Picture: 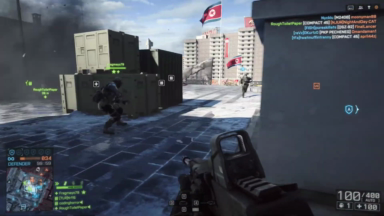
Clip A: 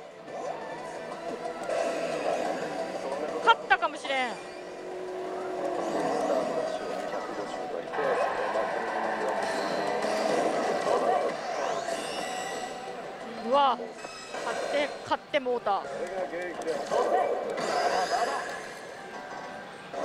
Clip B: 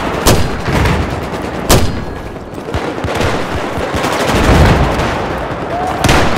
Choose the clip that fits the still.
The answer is B